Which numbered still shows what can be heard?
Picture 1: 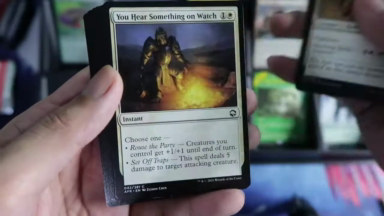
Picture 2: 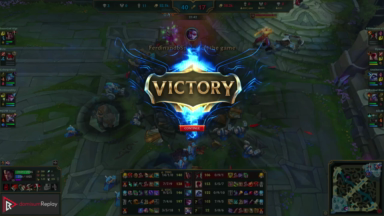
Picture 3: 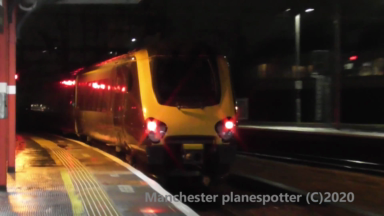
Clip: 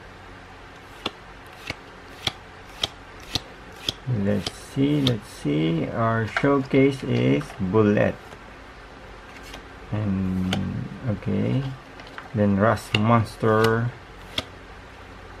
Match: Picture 1